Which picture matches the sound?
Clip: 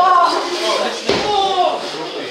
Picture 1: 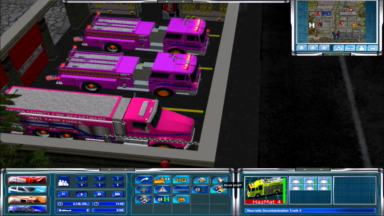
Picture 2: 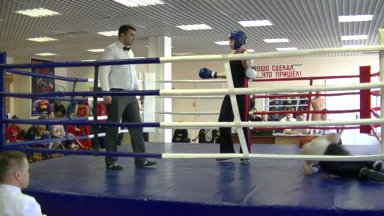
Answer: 2